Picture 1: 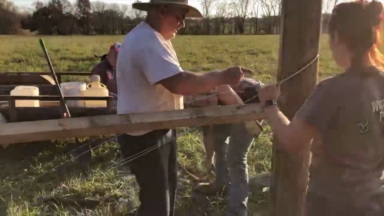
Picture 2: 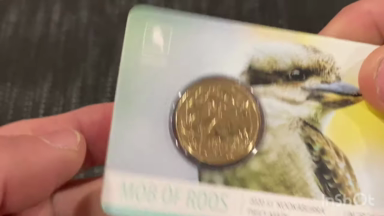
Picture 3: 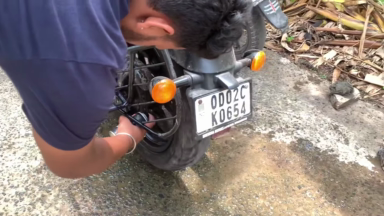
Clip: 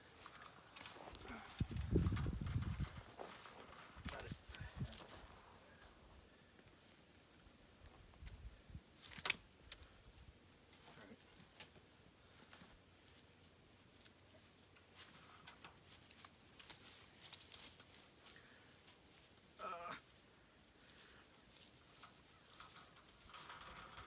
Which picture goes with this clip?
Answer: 1